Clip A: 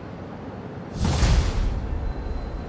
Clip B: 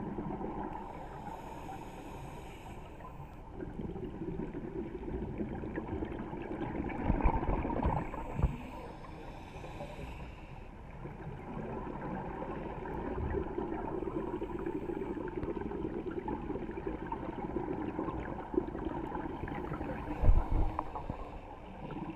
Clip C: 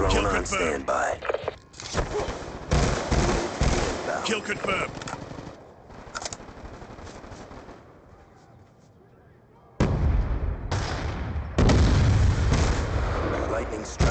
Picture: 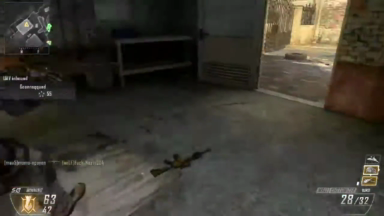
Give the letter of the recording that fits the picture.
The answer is C